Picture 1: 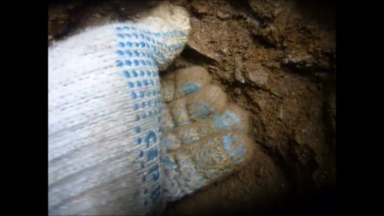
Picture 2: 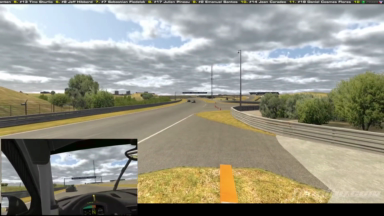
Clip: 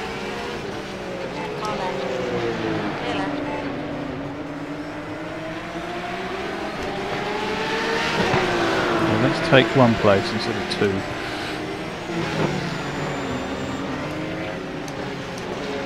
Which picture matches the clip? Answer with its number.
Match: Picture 2